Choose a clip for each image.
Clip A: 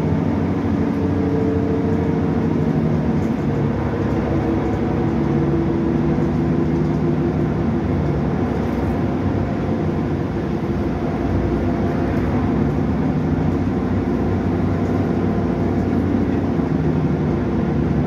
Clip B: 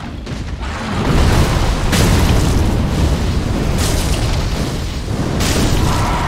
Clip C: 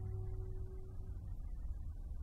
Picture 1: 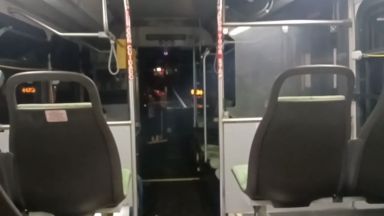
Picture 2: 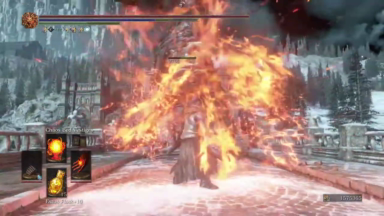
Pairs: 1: A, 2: B